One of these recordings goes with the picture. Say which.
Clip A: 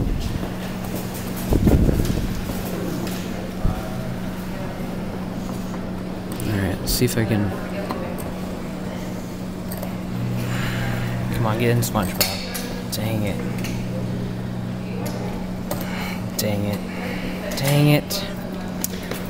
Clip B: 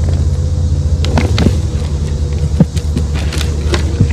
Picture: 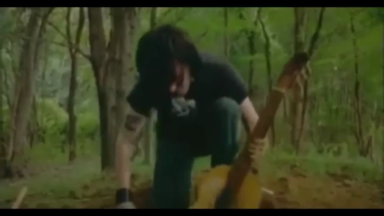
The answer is B